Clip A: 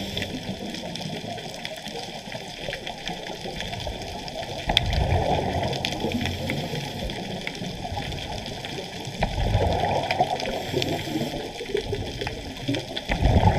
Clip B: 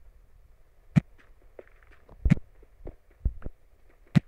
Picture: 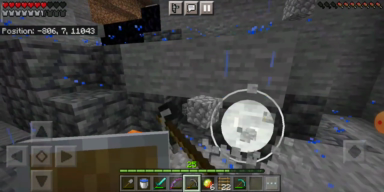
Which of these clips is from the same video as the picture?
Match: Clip B